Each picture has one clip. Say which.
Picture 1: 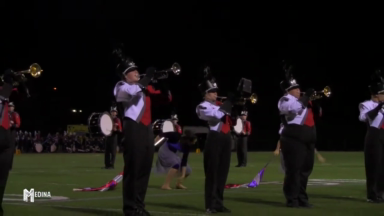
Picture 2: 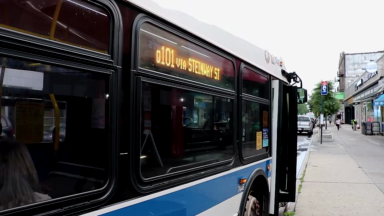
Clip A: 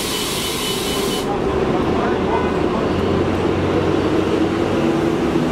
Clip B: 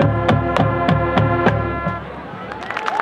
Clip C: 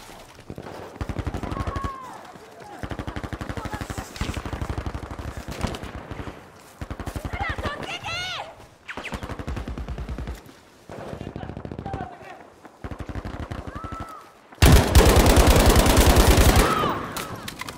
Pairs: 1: B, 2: A